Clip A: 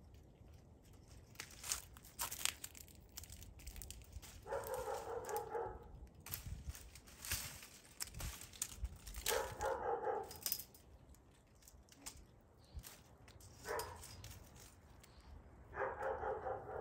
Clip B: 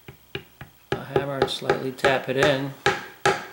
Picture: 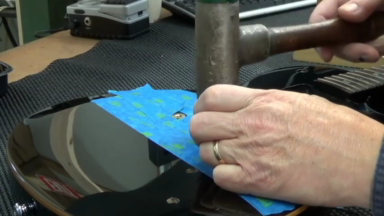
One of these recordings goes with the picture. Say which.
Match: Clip B